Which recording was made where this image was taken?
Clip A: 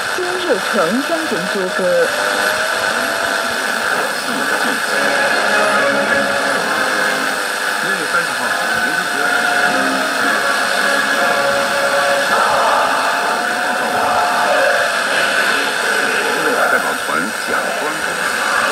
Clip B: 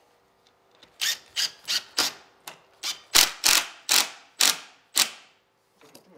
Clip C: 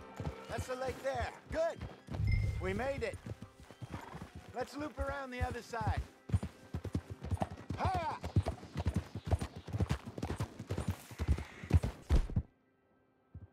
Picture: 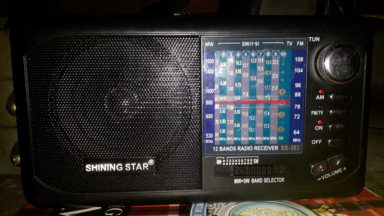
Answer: A